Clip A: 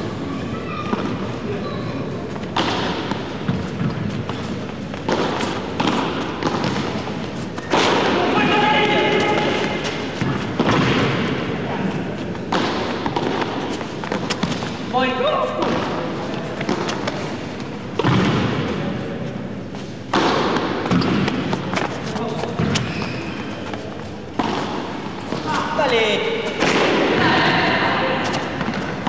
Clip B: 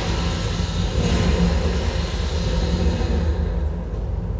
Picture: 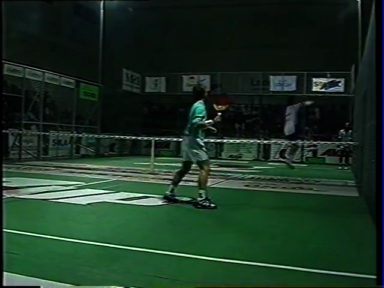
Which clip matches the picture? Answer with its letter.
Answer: A